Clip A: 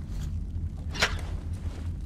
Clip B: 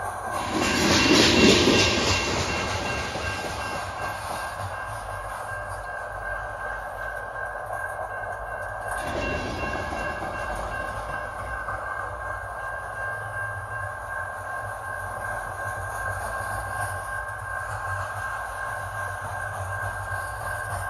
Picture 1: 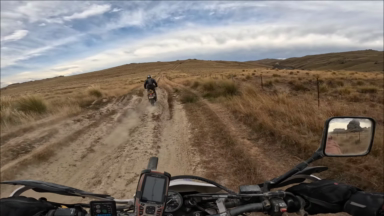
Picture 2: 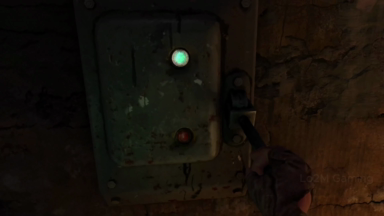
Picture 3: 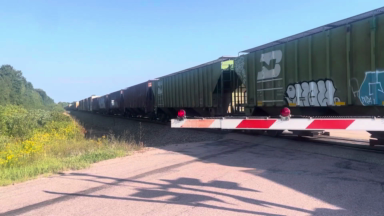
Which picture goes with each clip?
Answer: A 2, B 3